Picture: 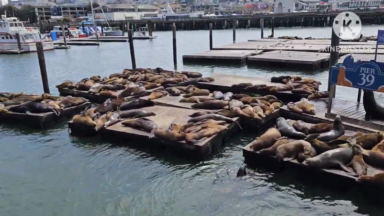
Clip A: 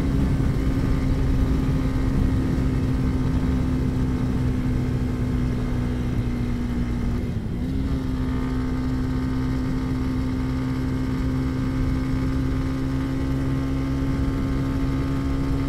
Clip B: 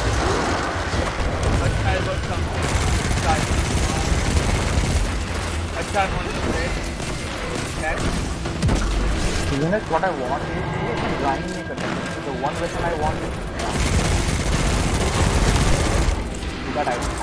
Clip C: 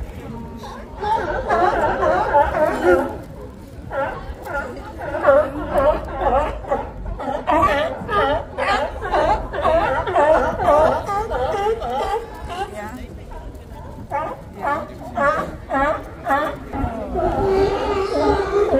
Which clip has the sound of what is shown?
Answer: C